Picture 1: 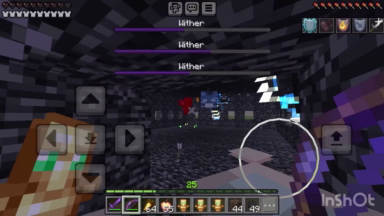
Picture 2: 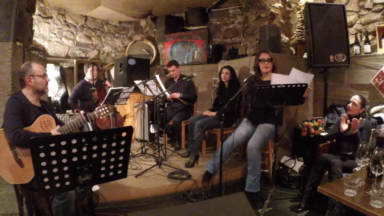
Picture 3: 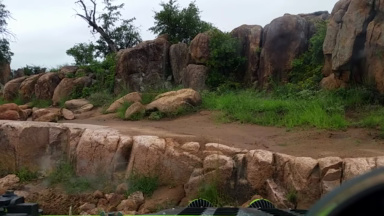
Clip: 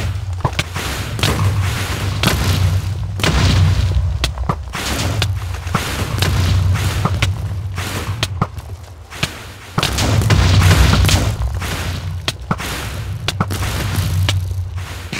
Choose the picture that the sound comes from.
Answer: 1